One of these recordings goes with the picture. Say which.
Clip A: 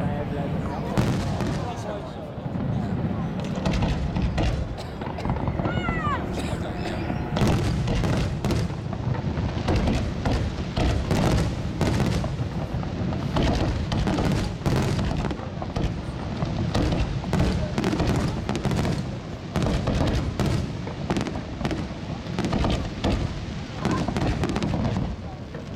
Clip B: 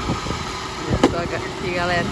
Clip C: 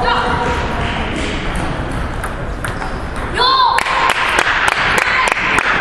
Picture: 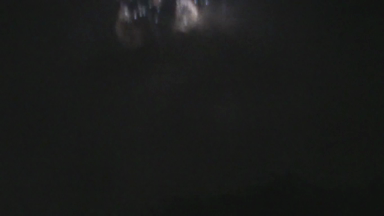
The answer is A